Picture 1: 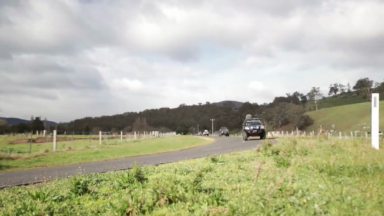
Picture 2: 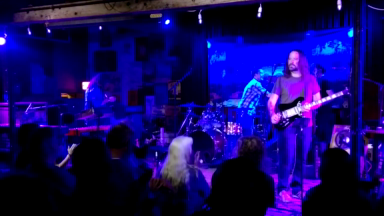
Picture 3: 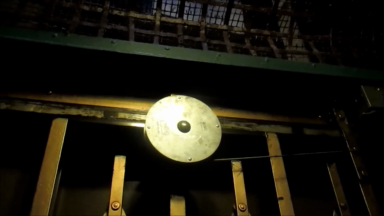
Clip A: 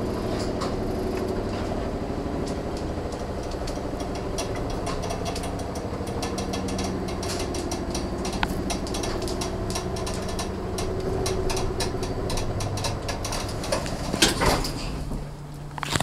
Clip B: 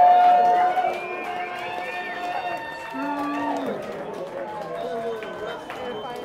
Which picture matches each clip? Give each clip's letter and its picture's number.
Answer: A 3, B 2